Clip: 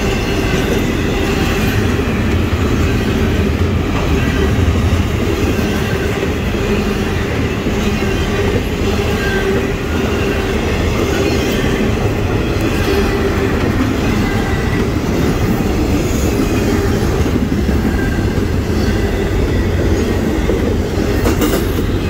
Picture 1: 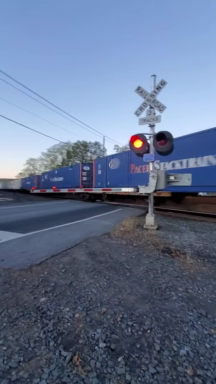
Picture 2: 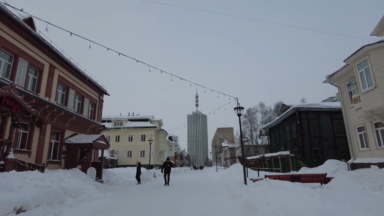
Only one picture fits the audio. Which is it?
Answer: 1